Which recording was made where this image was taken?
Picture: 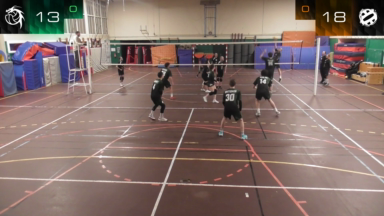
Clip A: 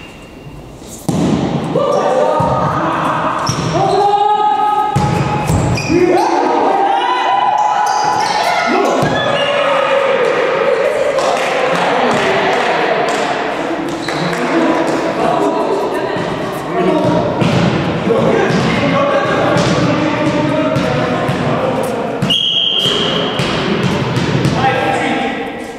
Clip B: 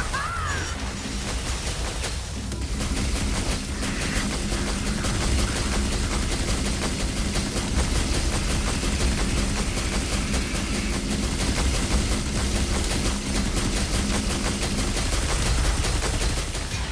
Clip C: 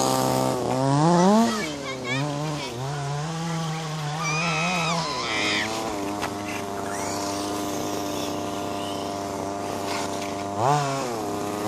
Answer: A